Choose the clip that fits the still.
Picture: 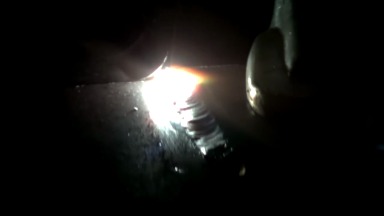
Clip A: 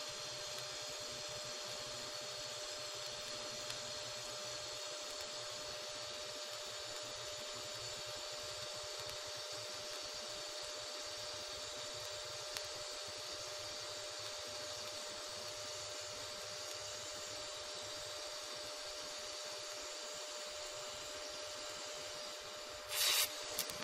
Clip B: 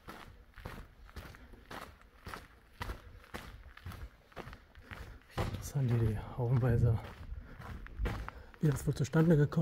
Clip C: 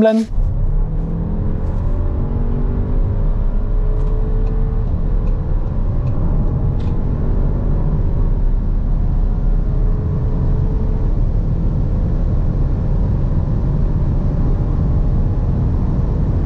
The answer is A